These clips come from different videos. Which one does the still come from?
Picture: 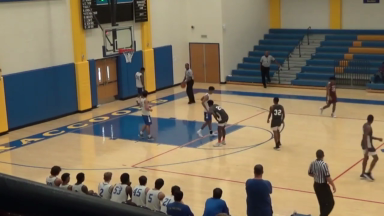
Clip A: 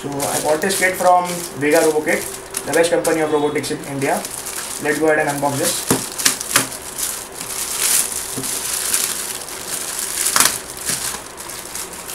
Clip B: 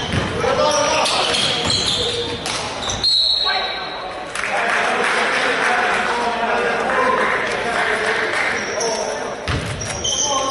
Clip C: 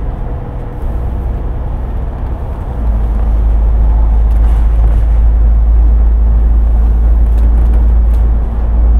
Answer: B